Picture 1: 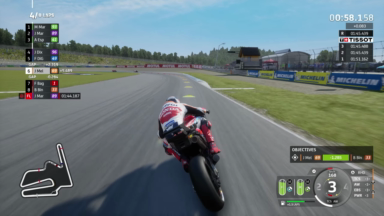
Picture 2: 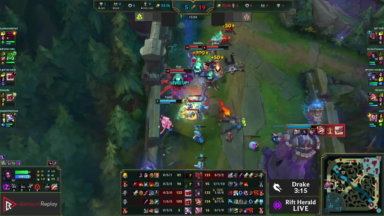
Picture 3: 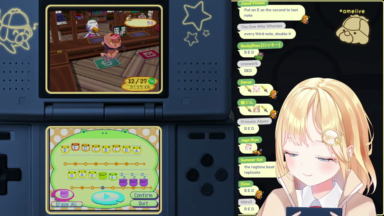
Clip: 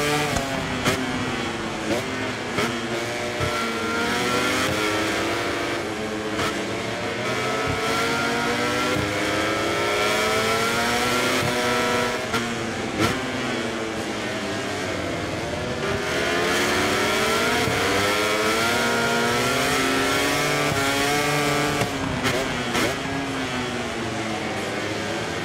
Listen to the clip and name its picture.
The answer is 1